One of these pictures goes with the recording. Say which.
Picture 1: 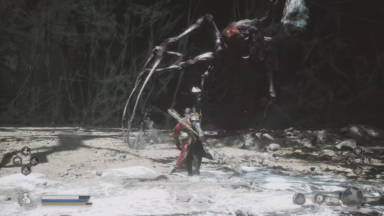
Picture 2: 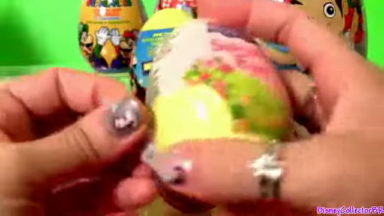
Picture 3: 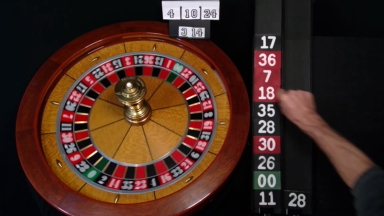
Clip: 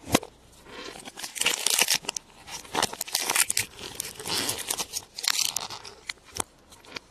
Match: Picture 2